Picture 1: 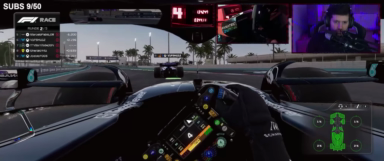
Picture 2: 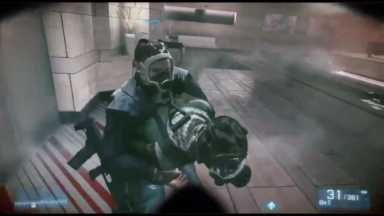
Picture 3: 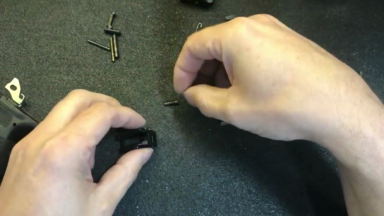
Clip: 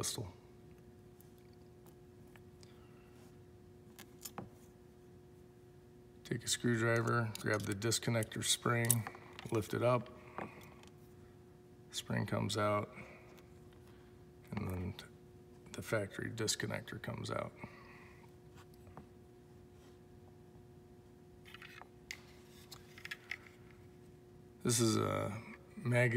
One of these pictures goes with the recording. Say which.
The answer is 3